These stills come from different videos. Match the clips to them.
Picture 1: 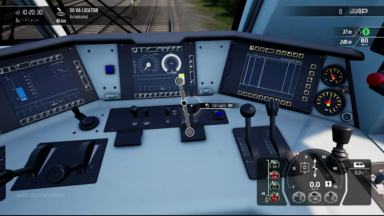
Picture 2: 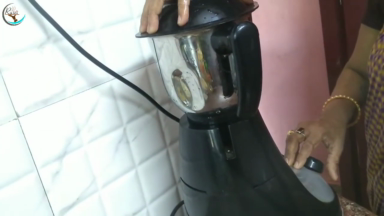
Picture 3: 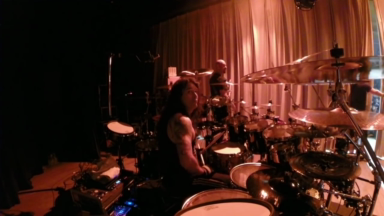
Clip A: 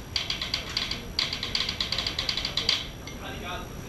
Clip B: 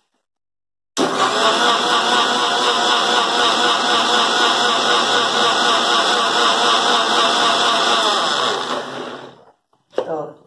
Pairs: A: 3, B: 2